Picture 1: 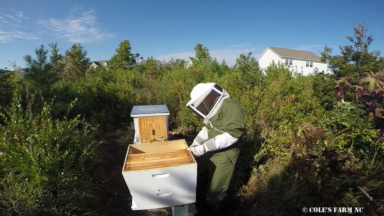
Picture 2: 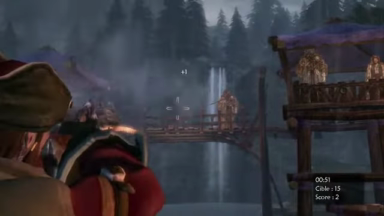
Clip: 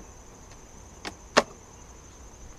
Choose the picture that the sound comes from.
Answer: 1